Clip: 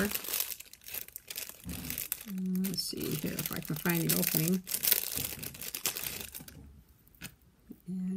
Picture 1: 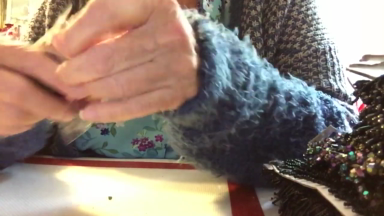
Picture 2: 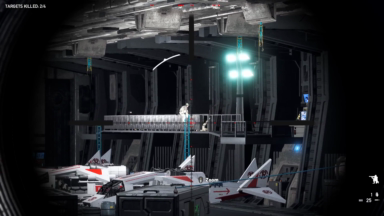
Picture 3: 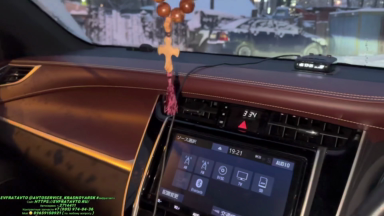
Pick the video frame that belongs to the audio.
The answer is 1